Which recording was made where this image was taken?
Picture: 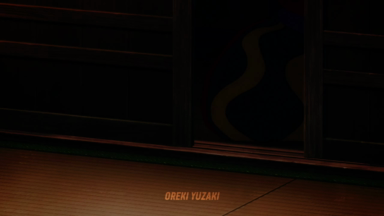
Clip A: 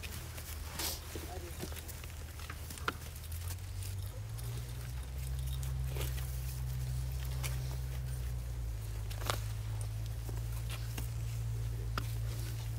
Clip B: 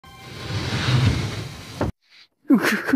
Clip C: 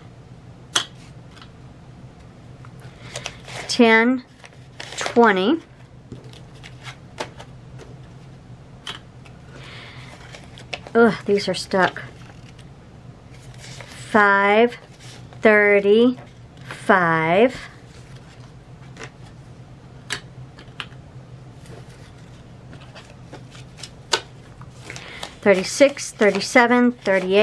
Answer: B